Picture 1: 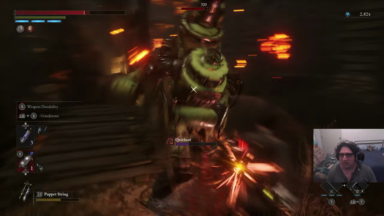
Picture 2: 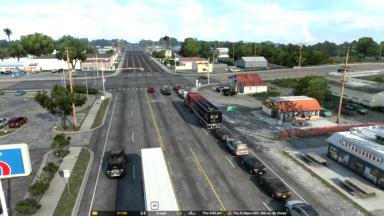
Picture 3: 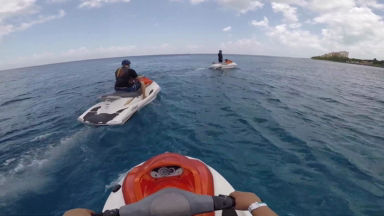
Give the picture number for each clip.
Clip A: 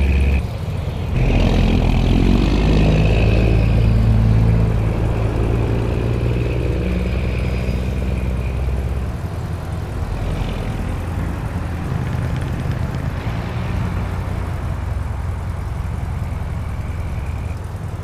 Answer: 2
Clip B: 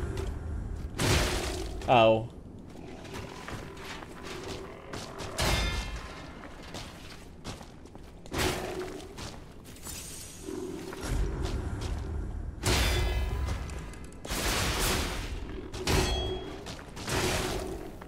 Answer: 1